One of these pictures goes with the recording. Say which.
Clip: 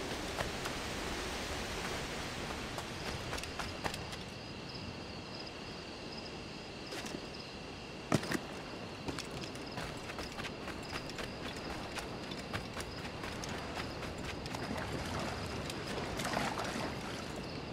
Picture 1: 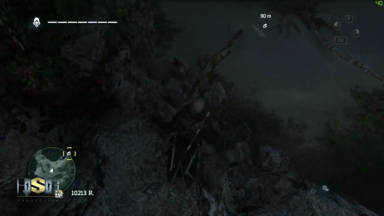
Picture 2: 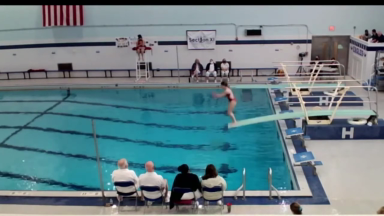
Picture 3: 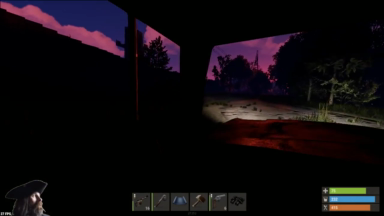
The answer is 1